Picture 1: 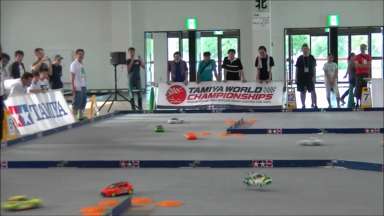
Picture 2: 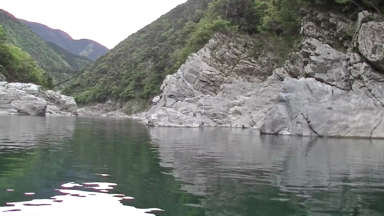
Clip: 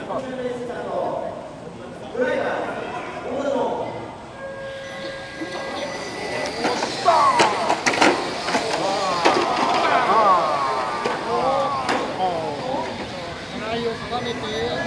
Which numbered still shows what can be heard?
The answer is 1